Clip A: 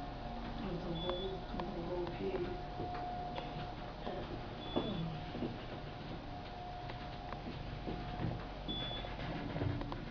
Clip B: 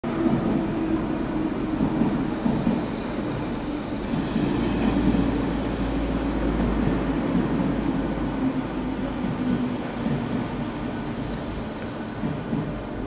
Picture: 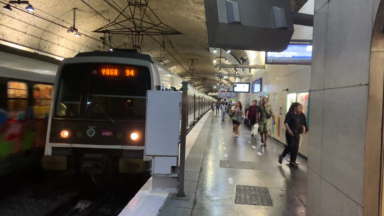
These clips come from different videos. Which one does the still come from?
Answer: B